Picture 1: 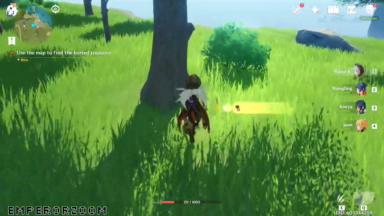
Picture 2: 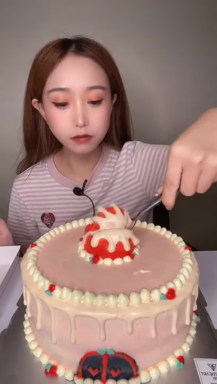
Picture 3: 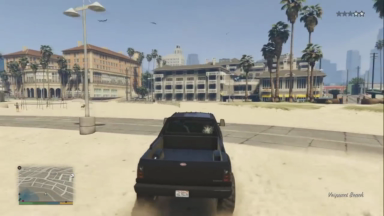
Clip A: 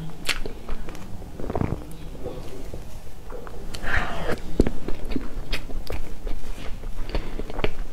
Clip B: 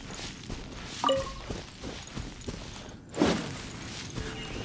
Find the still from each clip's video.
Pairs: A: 2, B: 1